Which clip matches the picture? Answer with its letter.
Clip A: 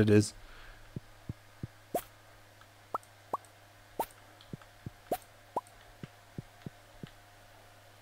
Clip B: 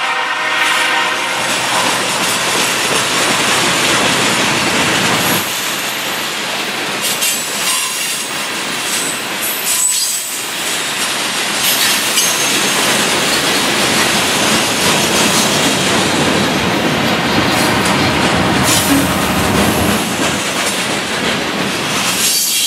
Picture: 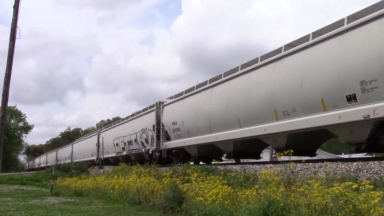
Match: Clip B